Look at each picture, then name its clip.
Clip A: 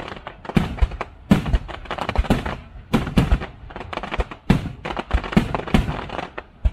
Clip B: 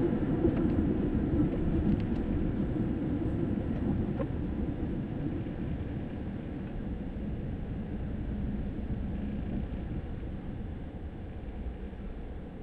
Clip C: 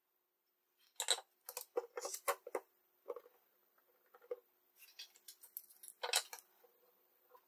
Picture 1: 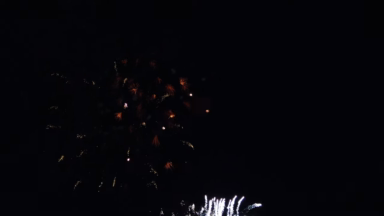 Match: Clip A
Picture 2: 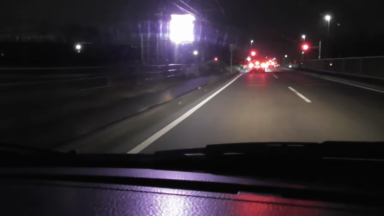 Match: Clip B